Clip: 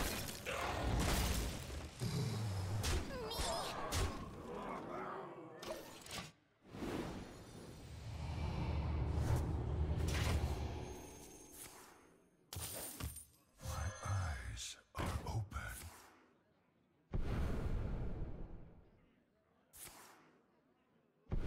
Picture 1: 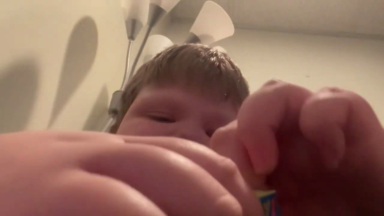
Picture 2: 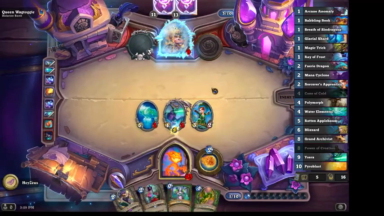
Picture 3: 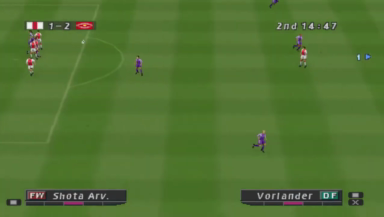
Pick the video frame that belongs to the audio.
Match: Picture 2